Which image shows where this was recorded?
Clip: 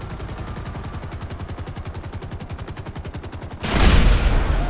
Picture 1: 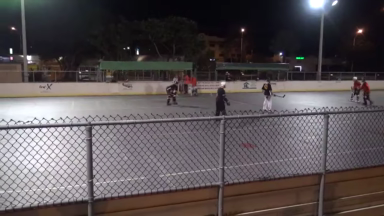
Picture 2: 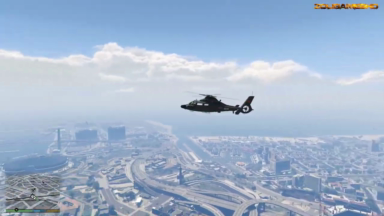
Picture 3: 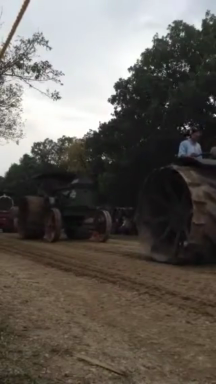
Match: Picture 2